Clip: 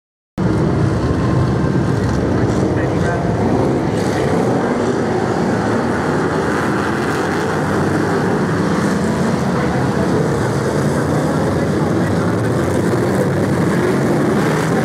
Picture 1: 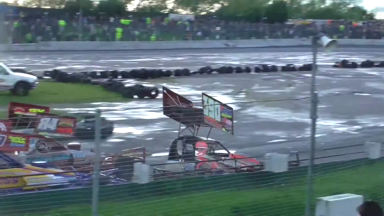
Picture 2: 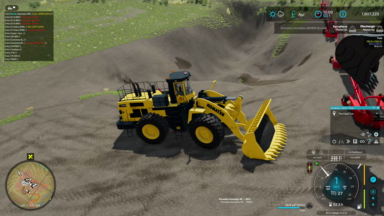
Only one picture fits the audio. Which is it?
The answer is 1